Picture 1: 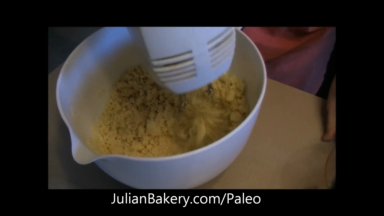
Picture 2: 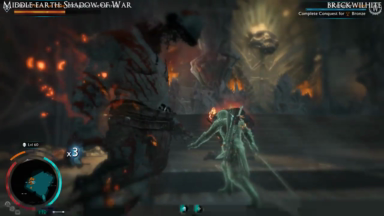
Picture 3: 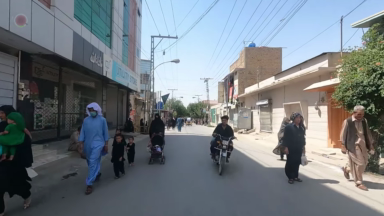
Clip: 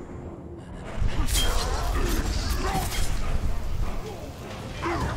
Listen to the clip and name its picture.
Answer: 2